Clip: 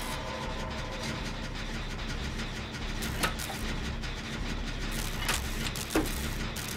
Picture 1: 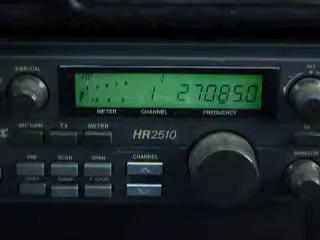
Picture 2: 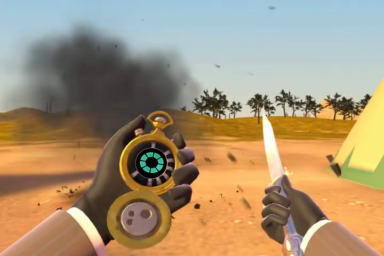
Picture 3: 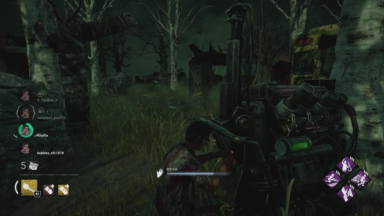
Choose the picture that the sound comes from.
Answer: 3